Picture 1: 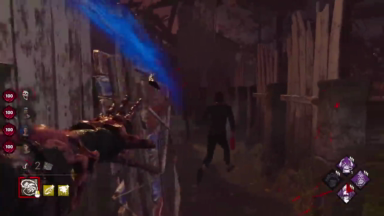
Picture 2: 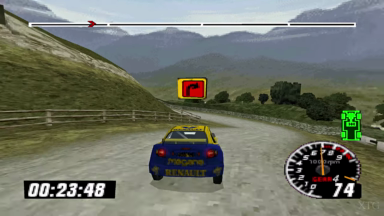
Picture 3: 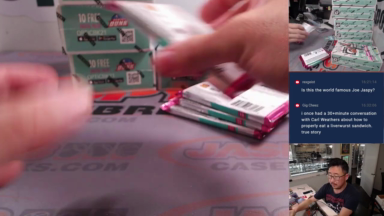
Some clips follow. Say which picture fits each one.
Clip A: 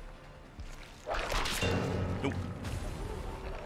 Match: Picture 1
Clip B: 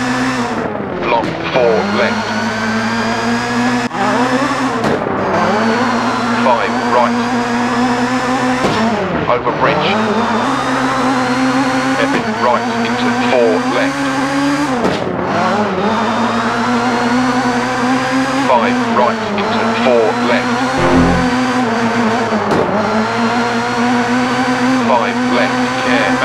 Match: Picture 2